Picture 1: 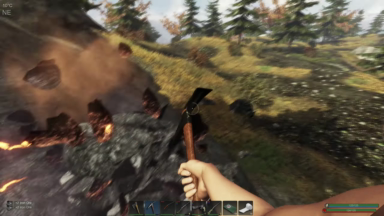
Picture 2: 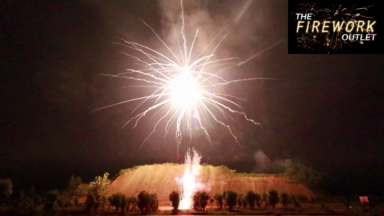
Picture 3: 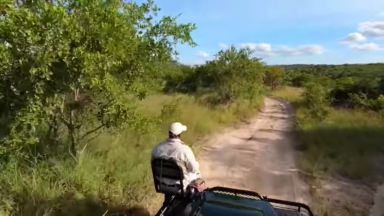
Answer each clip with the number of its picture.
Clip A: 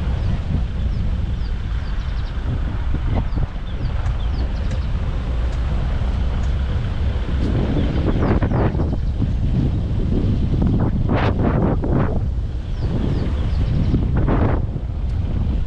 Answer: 3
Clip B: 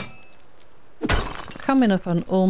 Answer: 1